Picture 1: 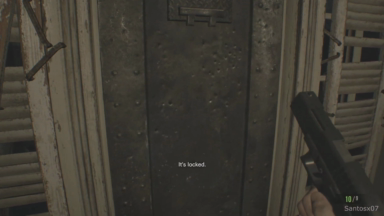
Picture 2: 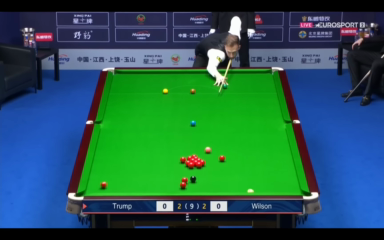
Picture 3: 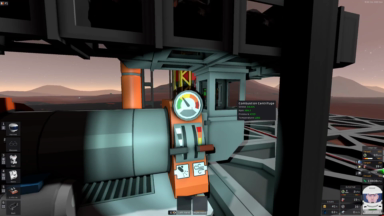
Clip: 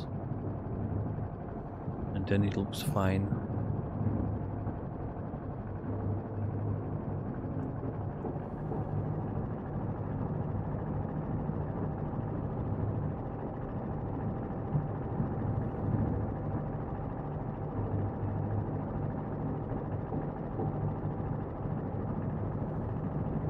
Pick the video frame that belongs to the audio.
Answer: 3